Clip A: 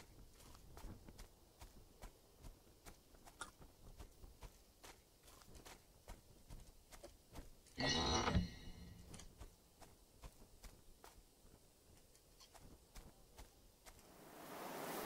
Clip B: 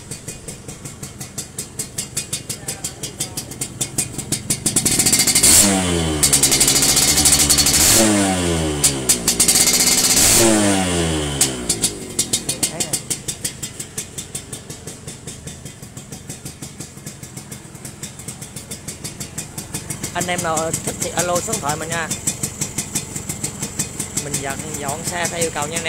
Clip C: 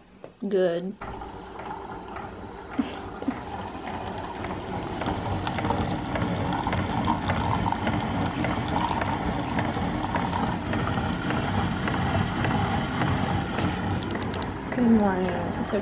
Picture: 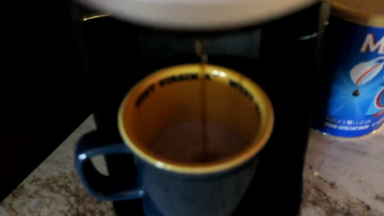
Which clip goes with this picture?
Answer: C